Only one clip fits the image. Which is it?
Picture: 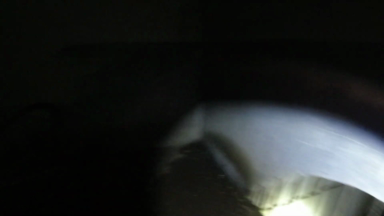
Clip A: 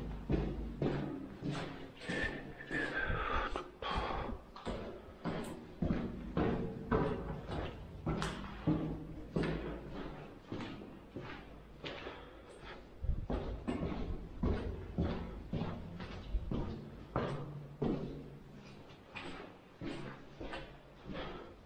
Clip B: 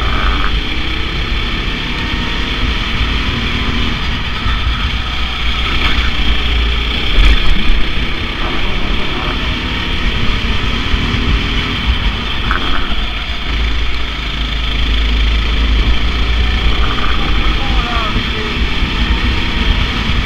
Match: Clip A